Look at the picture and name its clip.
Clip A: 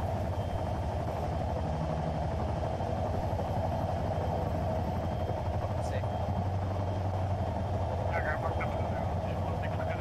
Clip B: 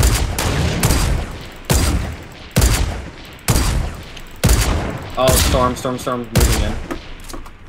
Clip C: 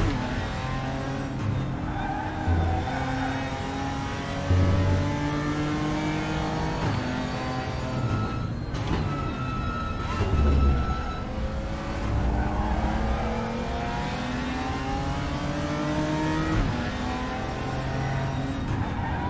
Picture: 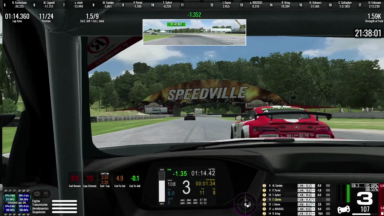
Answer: C